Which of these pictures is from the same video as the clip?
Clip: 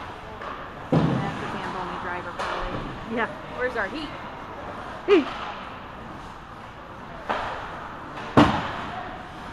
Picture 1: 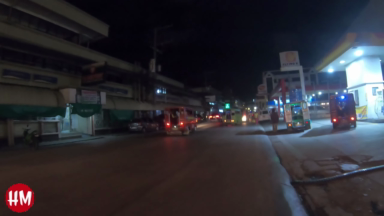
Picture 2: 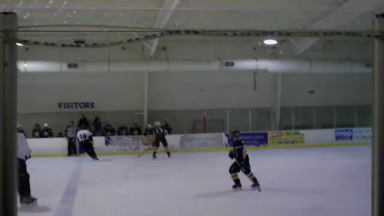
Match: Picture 2